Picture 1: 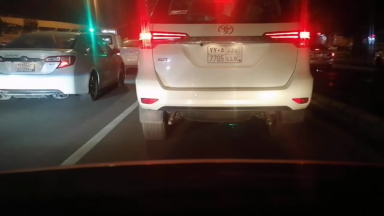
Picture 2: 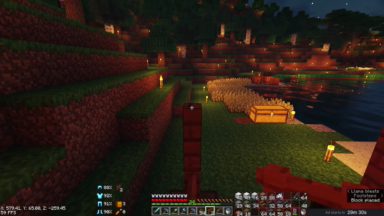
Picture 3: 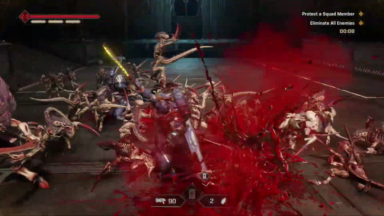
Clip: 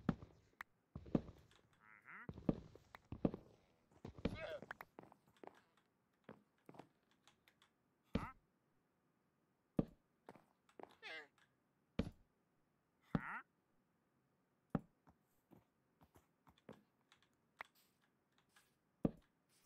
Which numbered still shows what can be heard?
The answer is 2